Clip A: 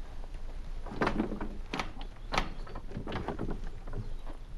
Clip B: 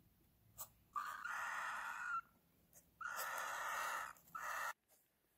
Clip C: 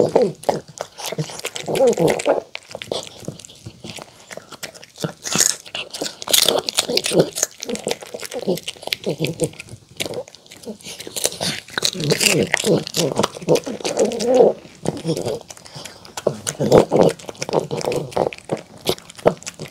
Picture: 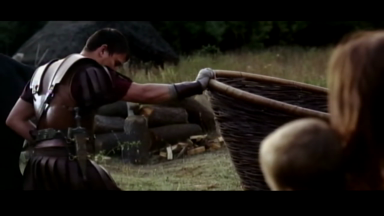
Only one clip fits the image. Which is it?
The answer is A